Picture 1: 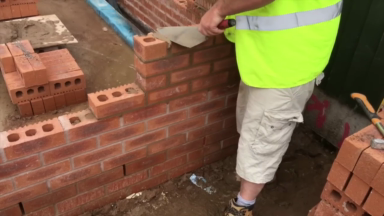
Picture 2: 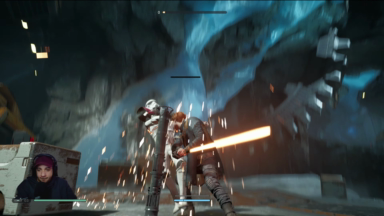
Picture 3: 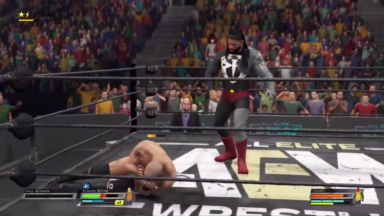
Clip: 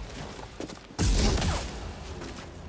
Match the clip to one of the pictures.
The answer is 2